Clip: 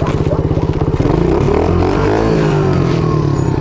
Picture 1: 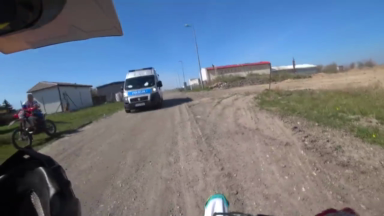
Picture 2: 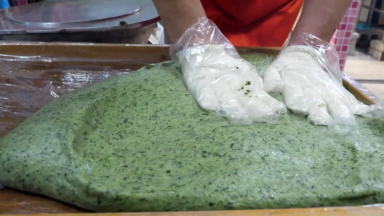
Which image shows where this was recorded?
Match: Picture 1